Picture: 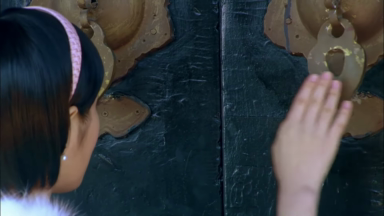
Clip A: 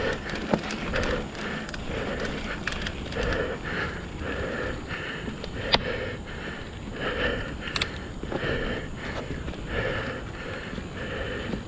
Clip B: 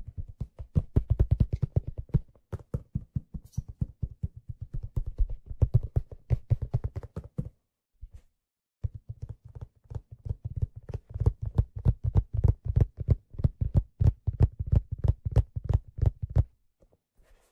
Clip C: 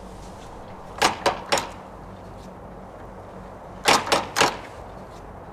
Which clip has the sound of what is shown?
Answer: C